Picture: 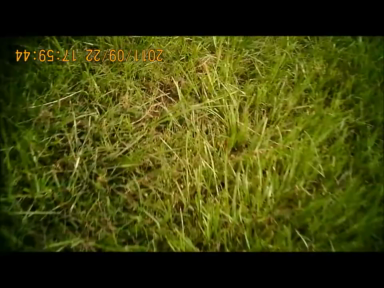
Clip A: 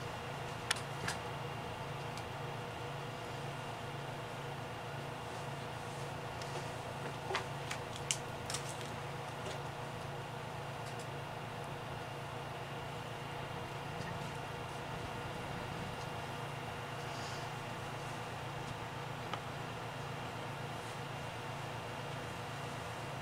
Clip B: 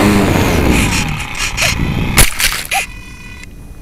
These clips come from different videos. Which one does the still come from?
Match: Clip B